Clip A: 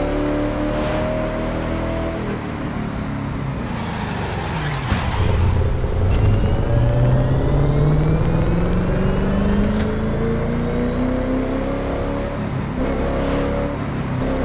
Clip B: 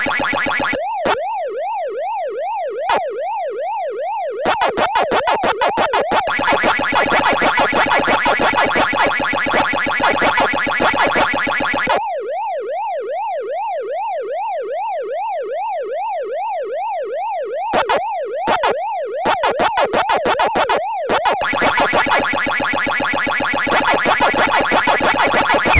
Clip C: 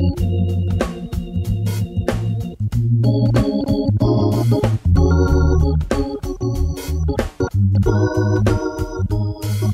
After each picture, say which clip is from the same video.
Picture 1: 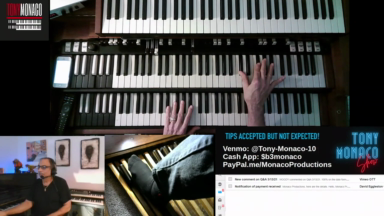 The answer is C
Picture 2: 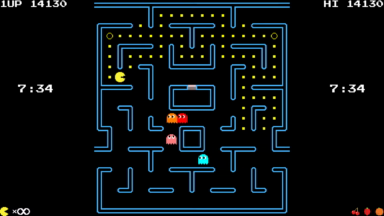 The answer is B